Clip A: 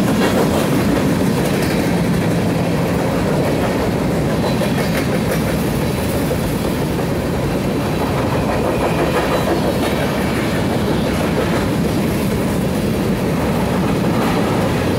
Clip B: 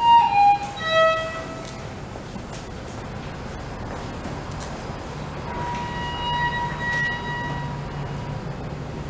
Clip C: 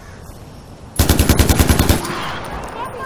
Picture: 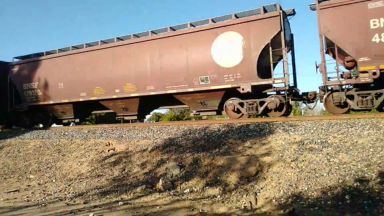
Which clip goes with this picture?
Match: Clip A